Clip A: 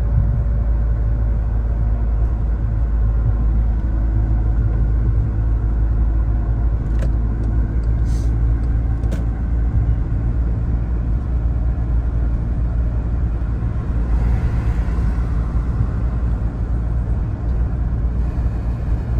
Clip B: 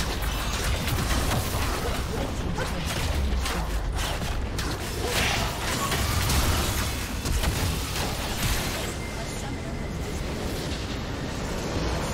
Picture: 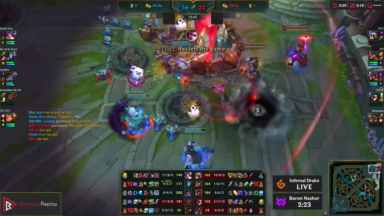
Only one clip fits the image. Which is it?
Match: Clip B